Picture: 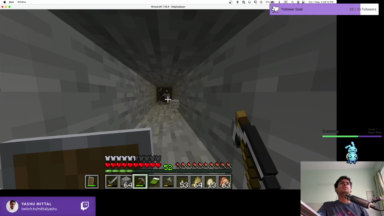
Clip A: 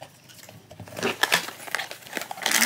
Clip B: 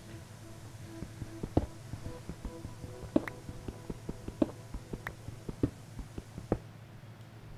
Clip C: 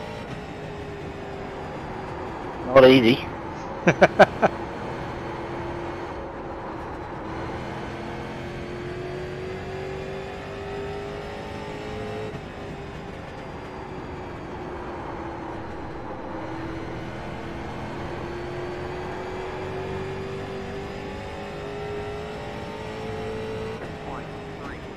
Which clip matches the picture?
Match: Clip B